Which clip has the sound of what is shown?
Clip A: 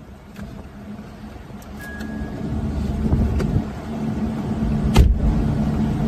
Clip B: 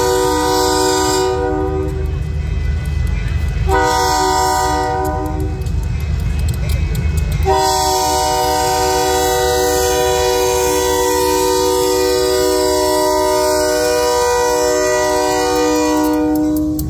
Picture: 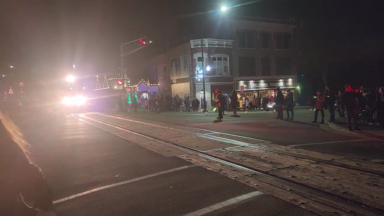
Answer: B